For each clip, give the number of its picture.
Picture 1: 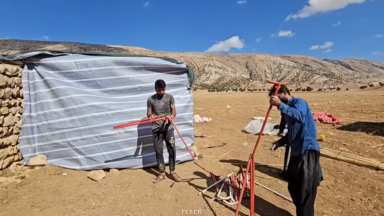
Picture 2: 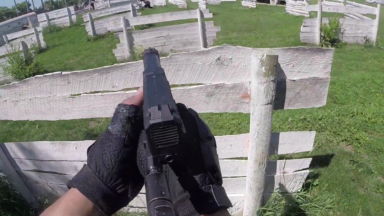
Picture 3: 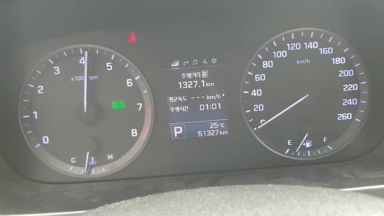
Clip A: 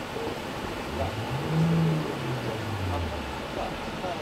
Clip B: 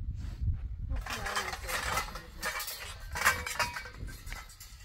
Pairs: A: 3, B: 1